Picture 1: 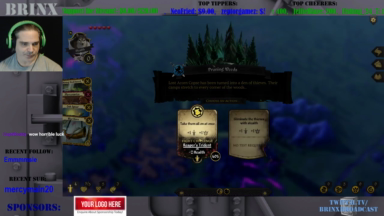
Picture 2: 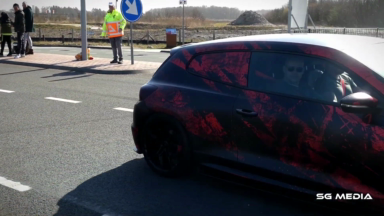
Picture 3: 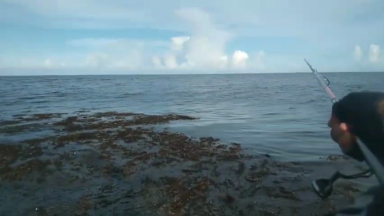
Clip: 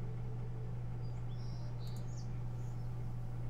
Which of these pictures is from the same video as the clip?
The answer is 1